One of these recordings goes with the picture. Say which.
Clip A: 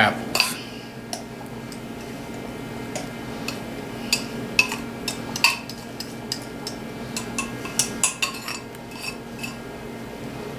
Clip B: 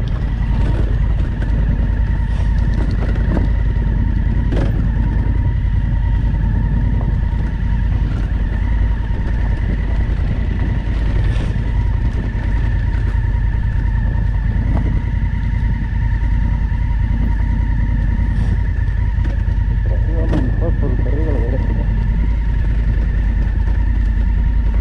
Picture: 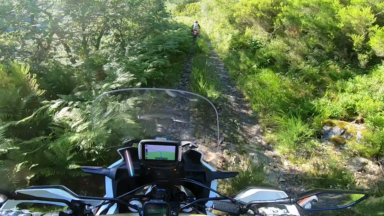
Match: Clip B